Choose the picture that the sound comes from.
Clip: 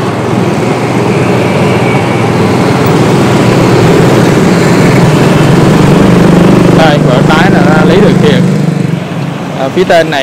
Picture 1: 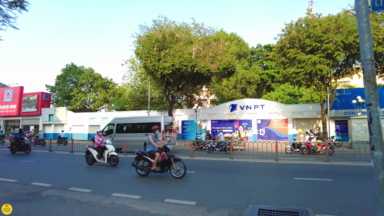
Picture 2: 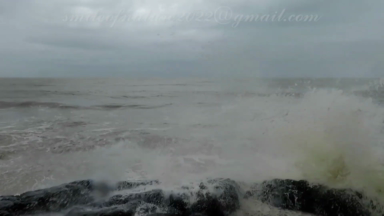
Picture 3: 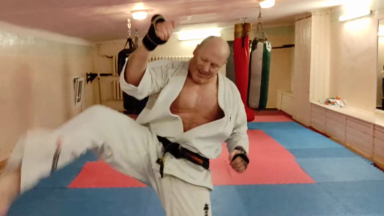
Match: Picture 1